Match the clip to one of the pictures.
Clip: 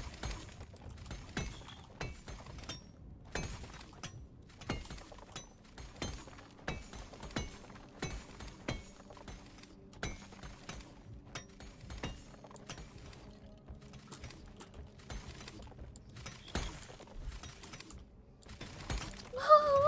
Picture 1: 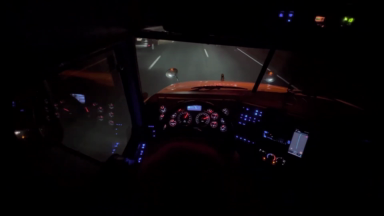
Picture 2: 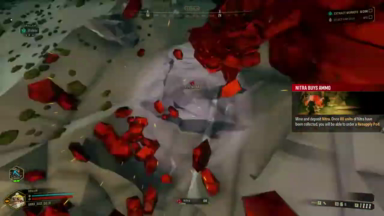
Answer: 2